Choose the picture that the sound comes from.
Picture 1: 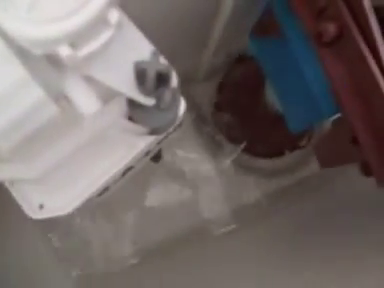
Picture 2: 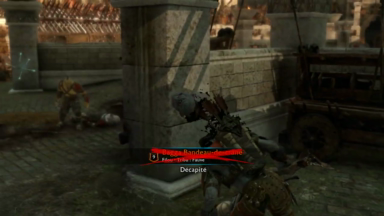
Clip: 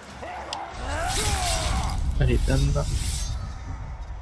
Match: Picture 2